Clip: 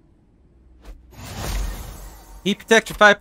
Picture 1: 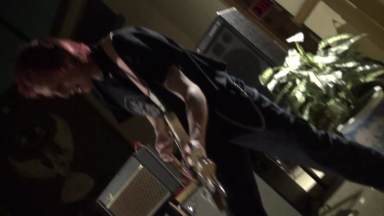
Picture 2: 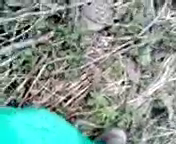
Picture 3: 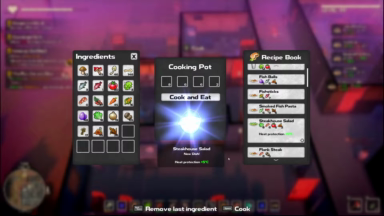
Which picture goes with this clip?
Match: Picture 3